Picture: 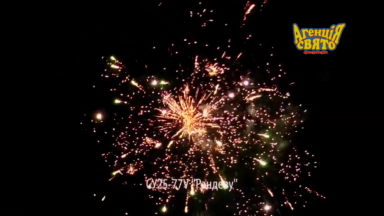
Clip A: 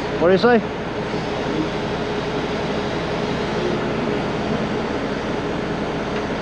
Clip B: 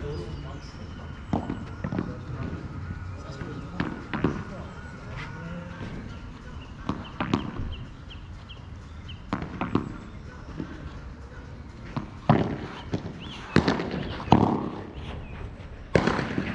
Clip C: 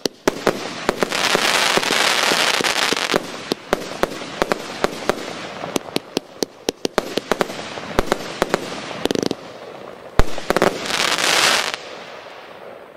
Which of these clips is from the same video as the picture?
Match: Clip C